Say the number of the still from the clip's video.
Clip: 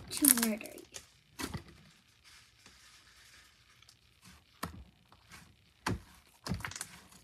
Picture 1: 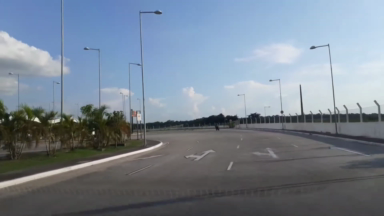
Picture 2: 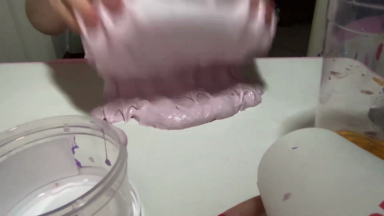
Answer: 2